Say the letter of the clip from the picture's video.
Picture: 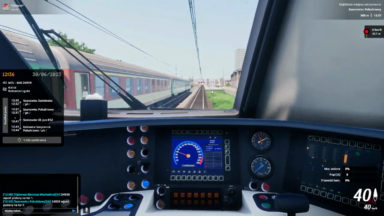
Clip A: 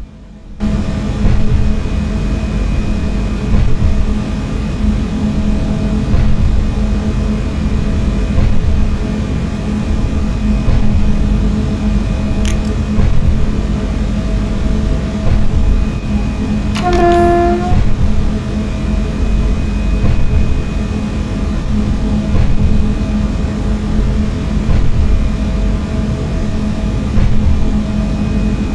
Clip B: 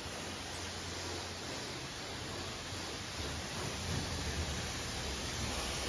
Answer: A